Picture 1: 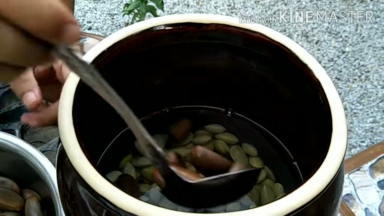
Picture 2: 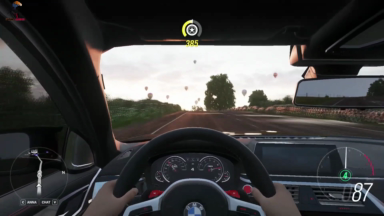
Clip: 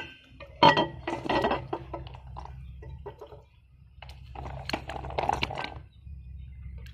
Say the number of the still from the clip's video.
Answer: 1